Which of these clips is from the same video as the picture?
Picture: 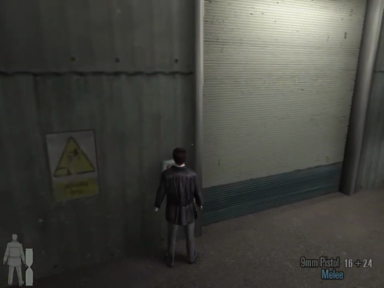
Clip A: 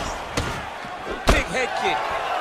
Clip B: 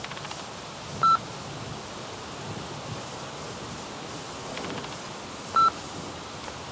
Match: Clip B